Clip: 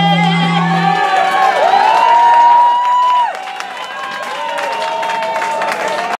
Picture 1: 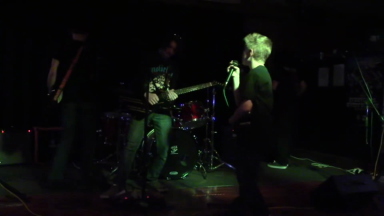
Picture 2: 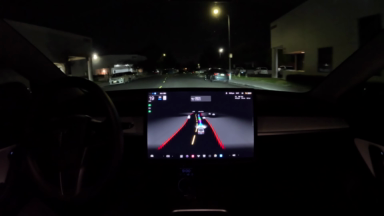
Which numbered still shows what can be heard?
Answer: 1